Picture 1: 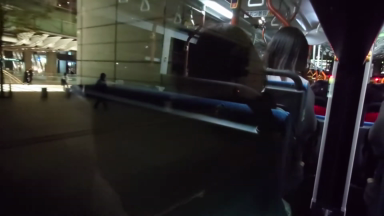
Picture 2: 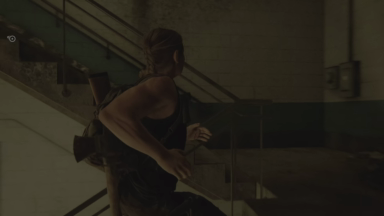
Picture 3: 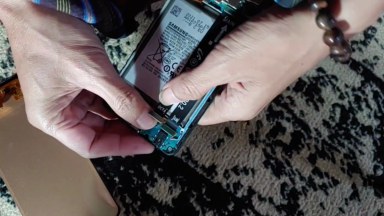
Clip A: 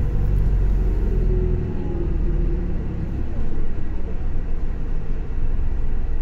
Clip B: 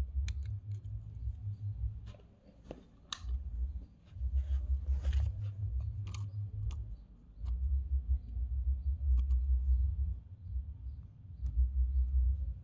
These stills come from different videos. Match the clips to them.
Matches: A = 1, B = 3